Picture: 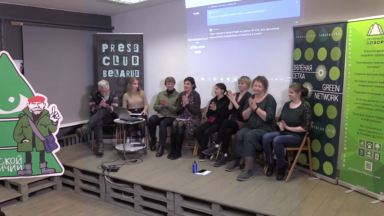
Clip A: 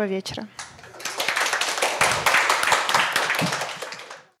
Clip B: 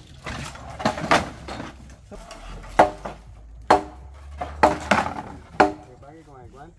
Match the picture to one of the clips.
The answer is A